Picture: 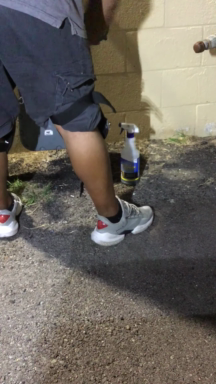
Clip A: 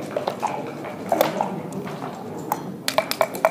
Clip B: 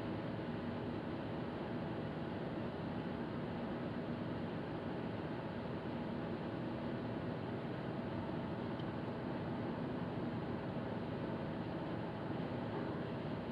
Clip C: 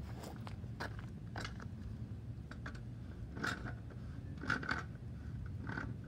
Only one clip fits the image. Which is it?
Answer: C